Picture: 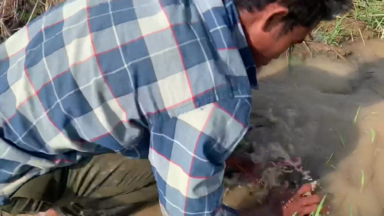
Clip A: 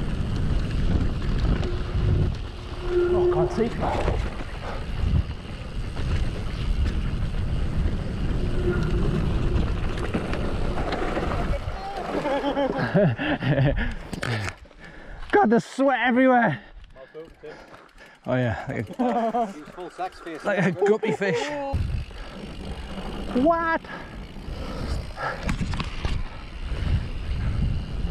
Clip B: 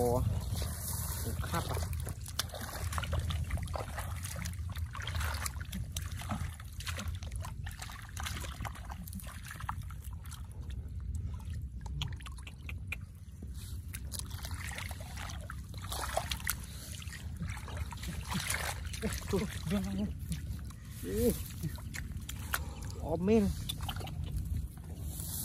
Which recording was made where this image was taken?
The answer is B